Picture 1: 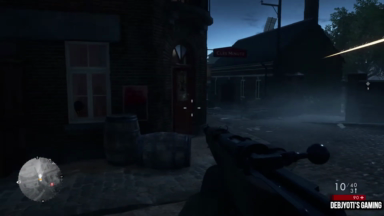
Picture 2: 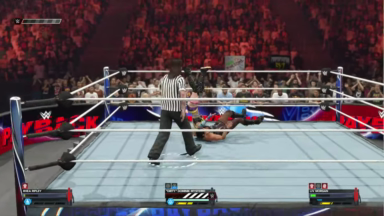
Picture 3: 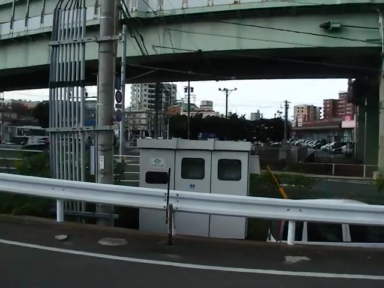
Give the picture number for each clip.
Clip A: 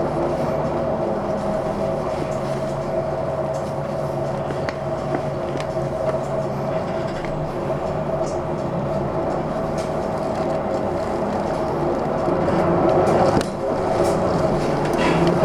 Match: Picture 3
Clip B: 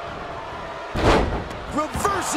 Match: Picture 2